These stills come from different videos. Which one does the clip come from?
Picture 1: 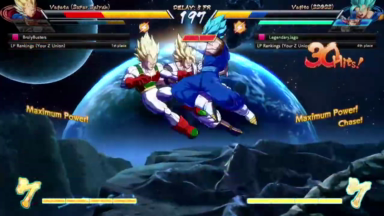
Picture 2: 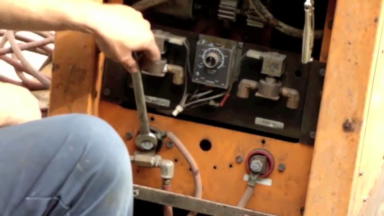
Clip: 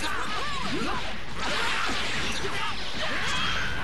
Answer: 1